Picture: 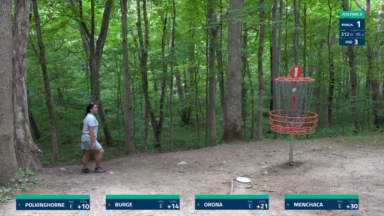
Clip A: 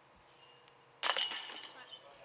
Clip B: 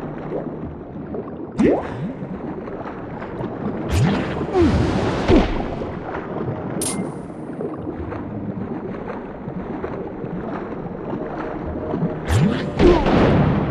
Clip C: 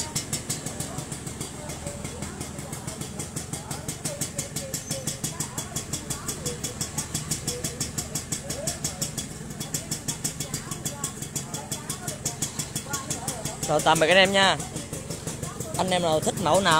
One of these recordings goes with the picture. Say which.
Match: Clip A